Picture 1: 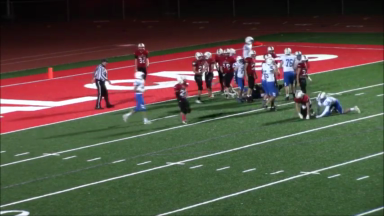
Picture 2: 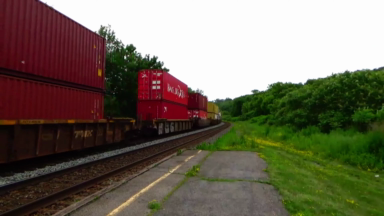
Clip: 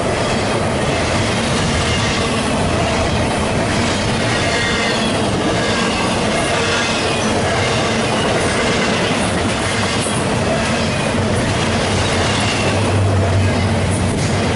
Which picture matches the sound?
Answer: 2